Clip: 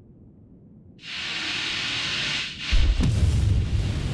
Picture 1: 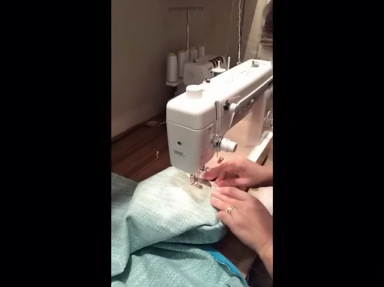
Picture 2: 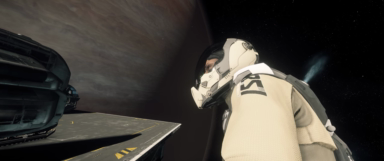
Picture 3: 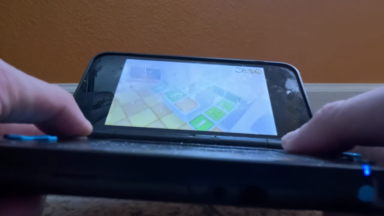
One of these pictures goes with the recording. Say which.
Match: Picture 2